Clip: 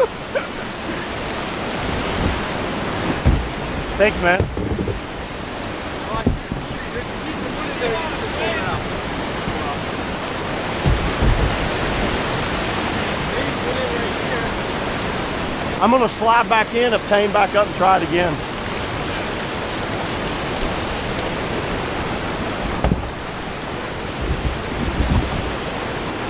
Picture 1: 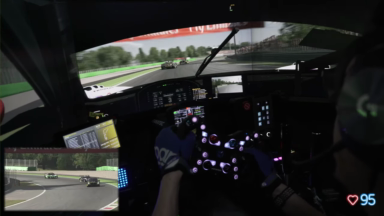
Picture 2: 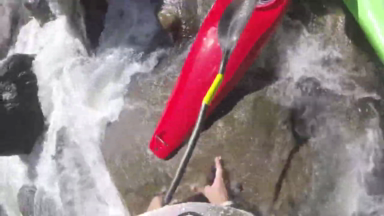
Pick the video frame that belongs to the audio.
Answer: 2